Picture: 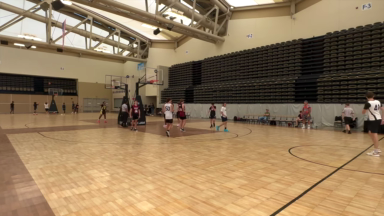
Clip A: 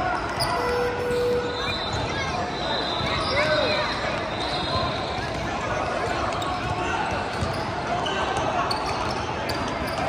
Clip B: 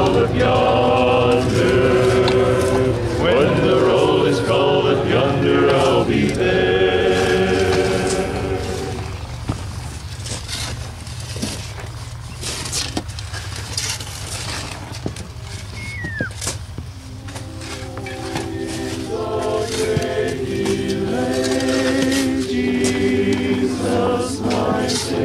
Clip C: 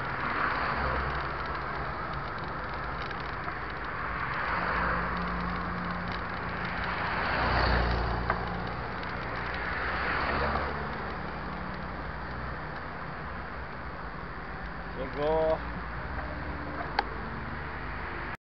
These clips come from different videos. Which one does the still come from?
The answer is A